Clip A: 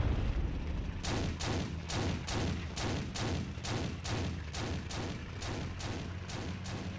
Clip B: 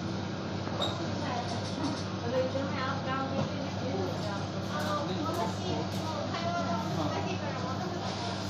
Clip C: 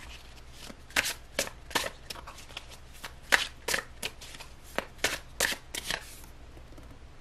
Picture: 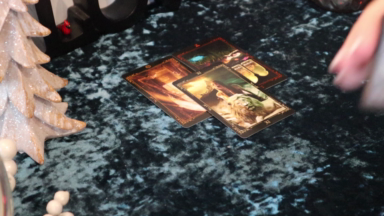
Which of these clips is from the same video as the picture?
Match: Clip C